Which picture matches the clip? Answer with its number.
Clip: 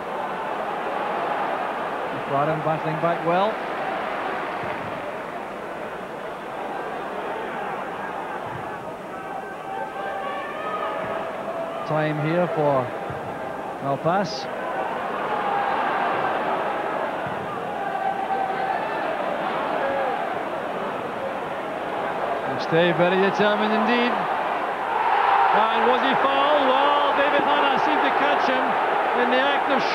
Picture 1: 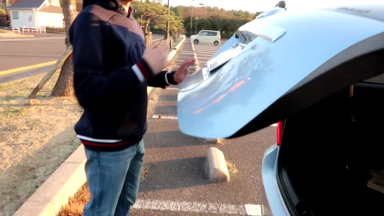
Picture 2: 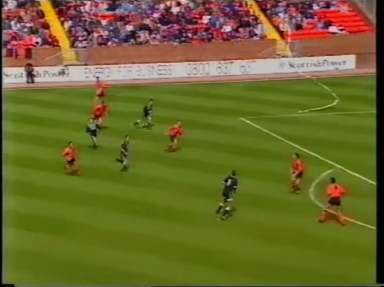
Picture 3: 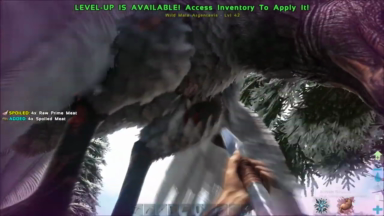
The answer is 2